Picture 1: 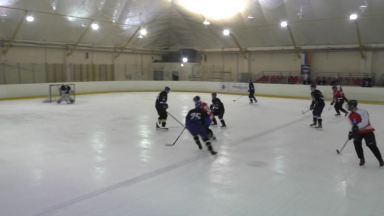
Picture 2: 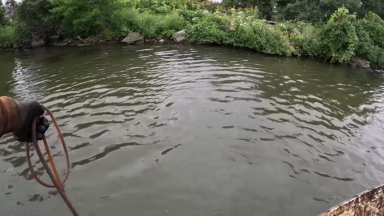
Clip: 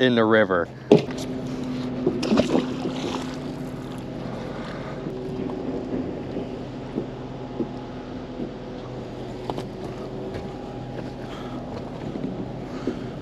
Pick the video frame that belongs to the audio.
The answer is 2